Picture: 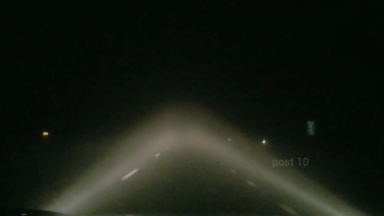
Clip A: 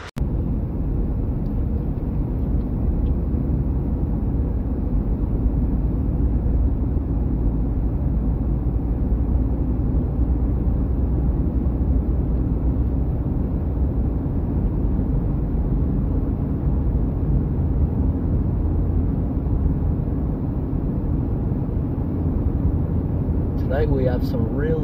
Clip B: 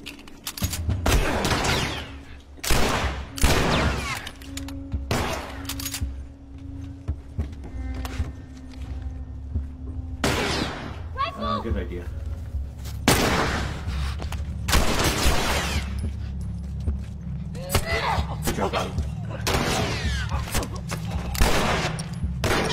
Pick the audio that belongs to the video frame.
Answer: A